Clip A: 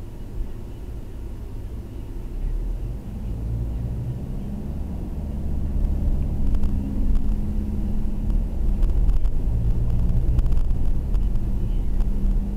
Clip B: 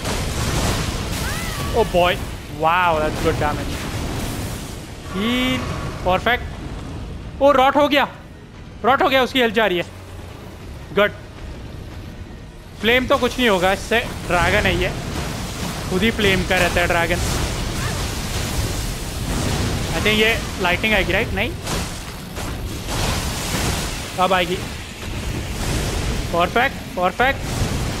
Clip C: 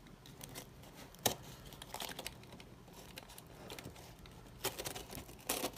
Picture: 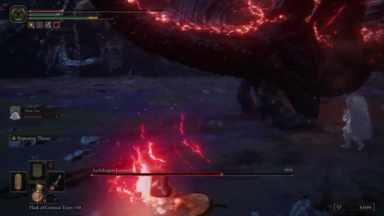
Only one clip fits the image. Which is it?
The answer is B